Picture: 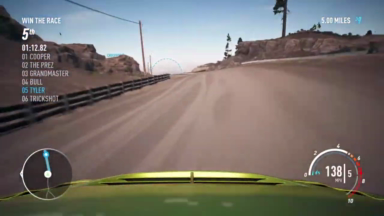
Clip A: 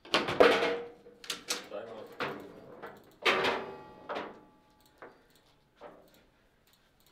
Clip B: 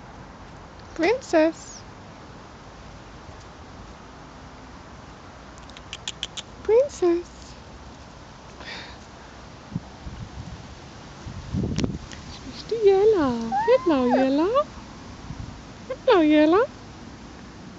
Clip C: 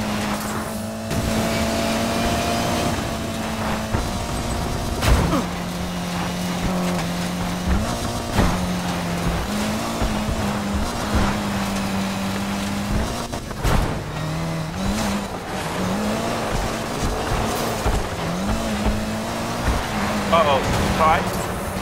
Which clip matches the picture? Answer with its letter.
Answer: C